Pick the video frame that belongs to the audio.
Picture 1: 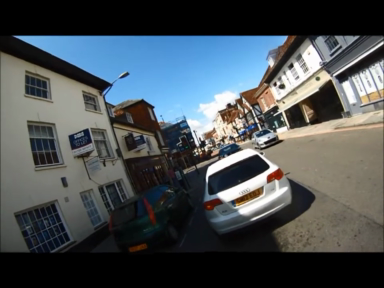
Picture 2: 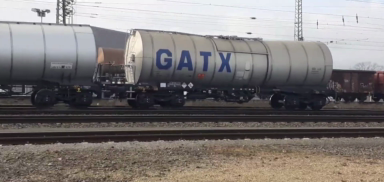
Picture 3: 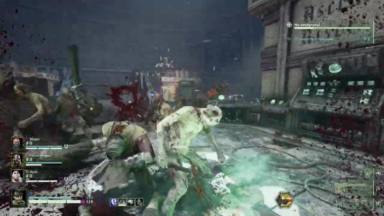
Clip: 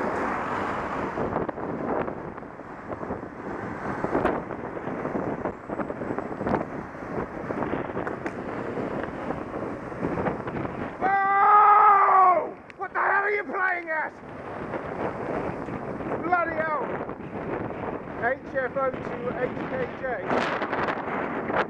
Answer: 1